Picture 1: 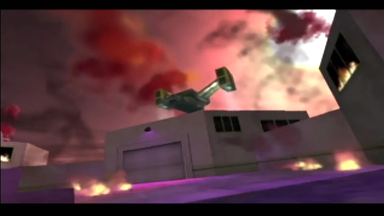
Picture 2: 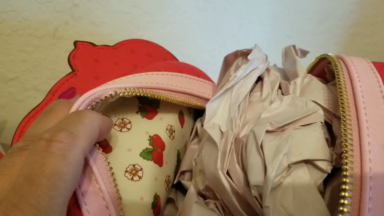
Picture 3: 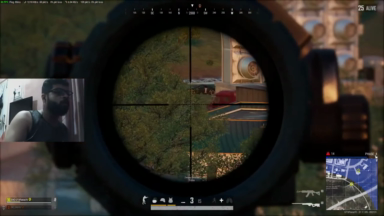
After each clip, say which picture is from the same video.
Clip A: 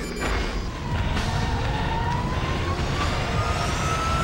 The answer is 1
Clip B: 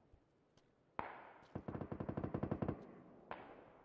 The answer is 3